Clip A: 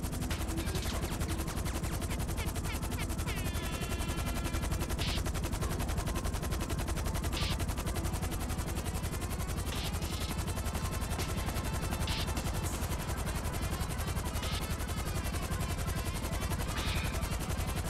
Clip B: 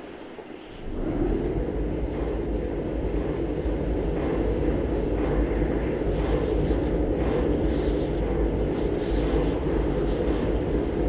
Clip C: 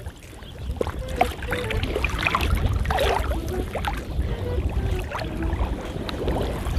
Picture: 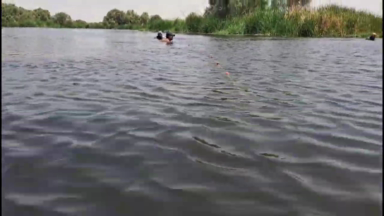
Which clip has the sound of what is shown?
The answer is C